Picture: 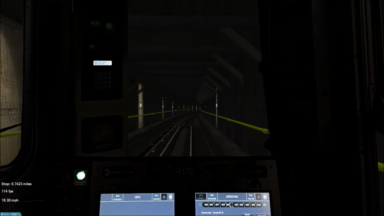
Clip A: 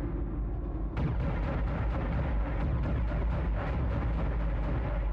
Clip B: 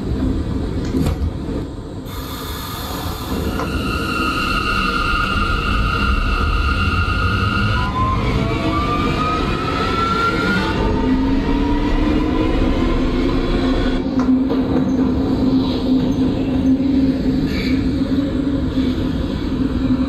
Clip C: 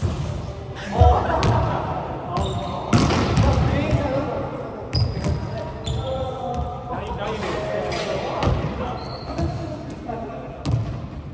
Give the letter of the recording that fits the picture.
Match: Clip B